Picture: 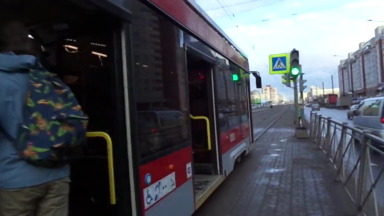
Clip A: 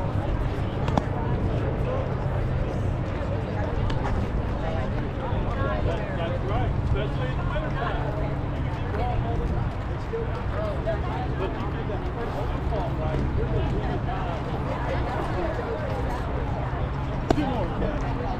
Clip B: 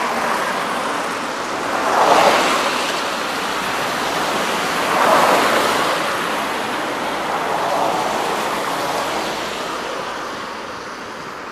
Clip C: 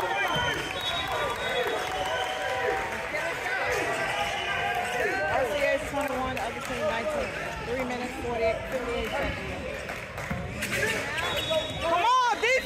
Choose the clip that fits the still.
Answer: B